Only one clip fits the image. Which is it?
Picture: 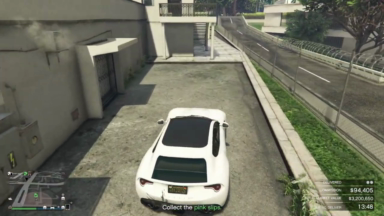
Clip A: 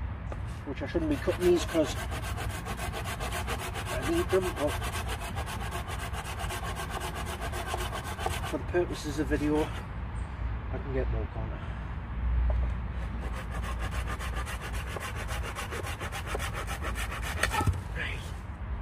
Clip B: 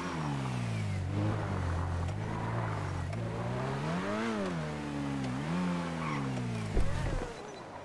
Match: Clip B